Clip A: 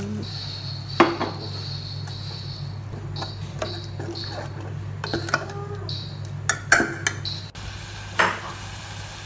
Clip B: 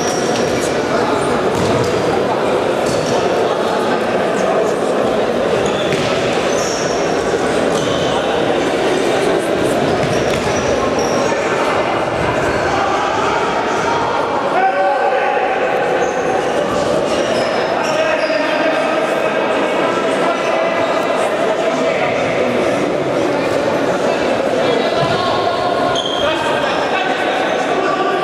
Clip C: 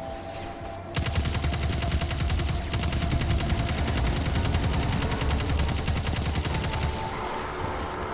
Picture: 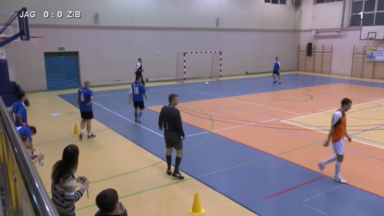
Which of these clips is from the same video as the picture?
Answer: B